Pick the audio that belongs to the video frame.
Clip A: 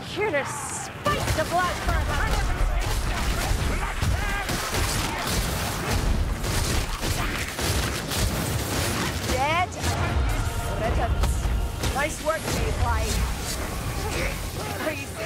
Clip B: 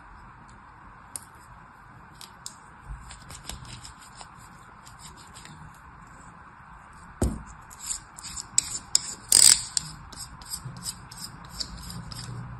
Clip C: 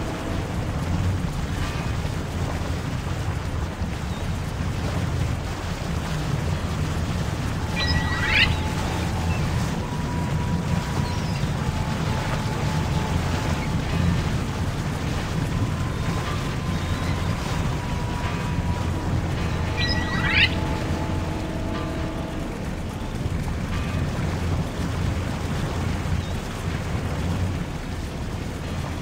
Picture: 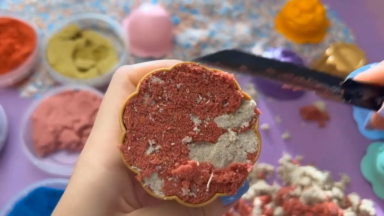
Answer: B